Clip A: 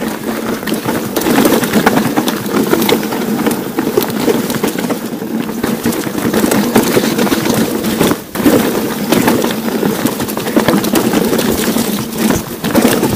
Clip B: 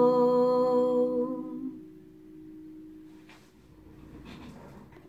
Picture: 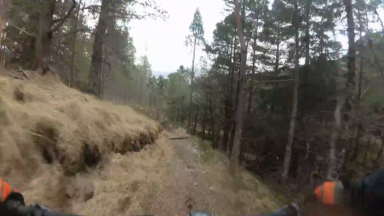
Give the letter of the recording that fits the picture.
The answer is A